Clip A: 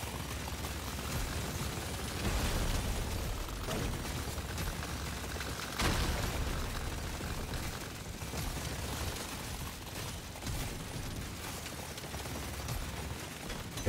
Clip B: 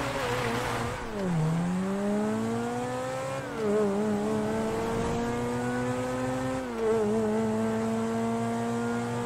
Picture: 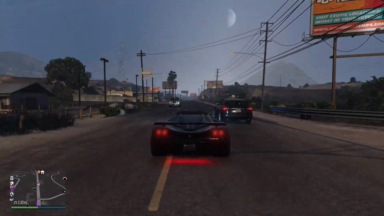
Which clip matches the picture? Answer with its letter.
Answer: B